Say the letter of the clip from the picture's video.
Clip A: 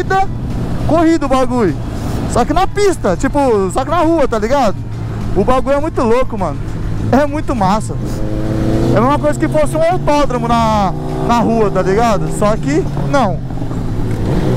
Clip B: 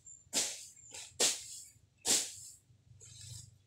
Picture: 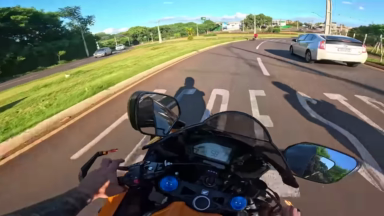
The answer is A